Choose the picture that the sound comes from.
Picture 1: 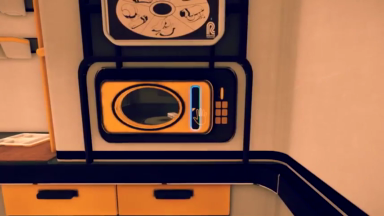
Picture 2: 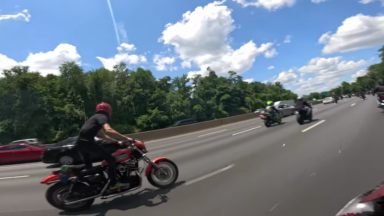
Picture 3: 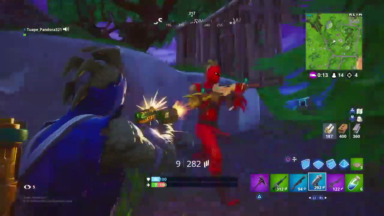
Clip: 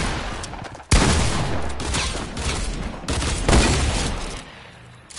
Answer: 3